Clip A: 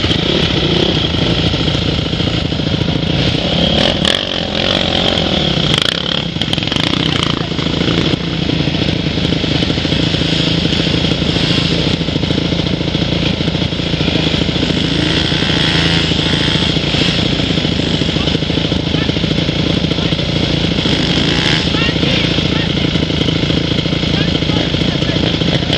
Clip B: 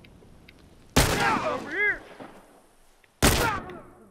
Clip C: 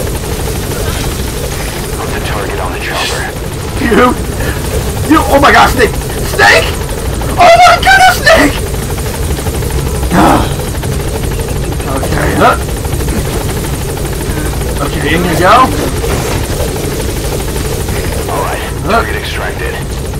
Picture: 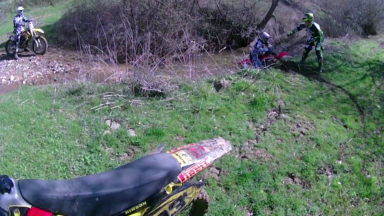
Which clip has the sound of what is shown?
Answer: A